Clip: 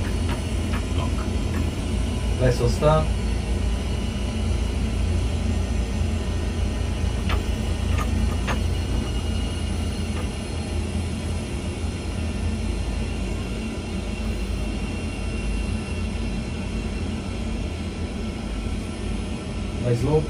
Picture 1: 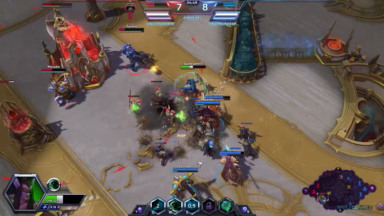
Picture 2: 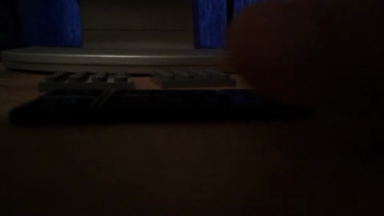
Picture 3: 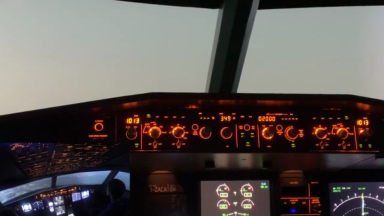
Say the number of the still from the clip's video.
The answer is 3